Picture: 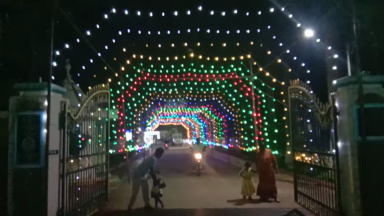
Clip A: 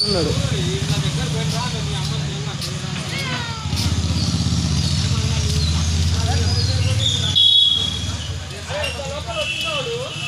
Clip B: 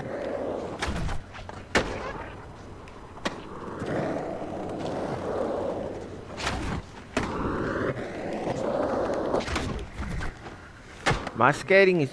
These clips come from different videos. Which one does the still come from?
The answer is A